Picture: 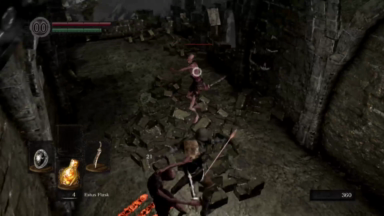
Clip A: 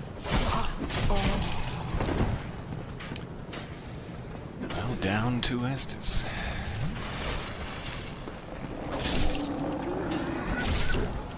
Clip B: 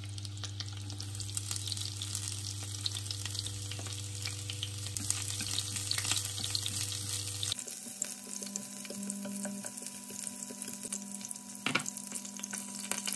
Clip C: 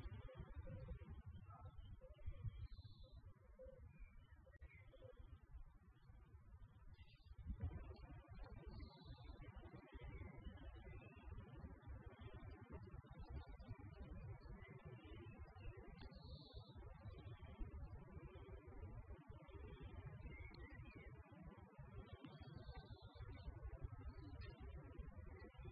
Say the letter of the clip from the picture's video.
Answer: A